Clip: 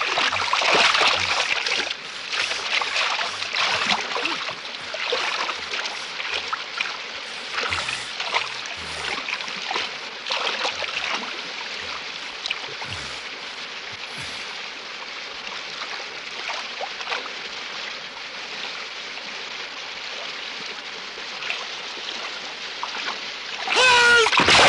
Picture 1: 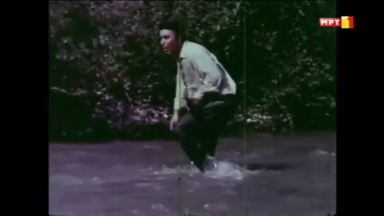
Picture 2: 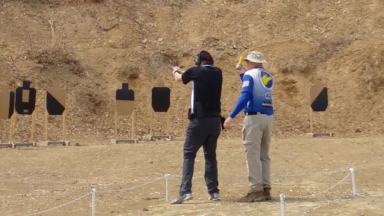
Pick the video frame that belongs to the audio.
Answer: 1